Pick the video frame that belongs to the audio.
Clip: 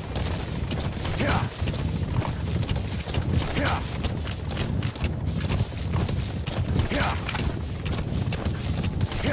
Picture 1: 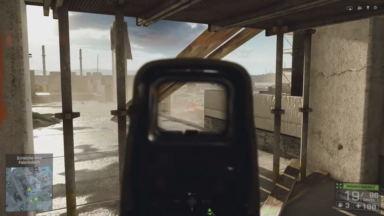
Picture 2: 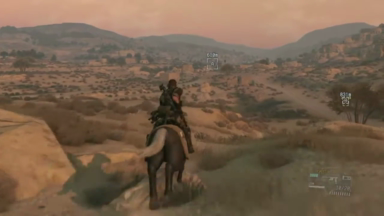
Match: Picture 2